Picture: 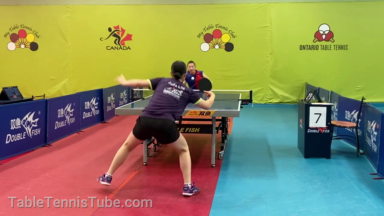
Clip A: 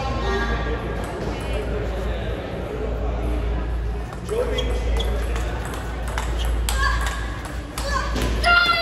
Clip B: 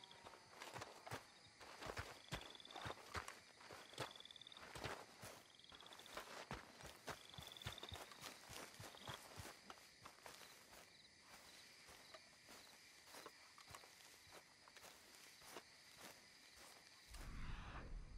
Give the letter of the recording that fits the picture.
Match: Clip A